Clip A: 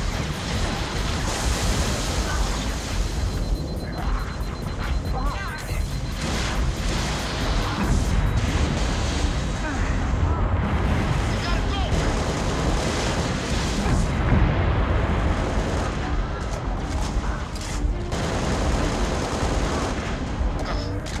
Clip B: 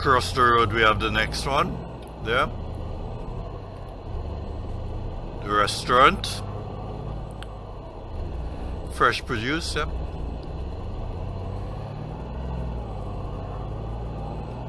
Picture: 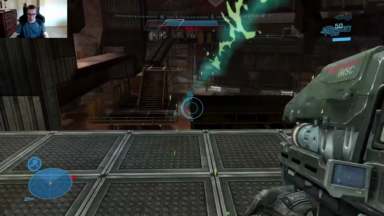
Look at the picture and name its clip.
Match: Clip A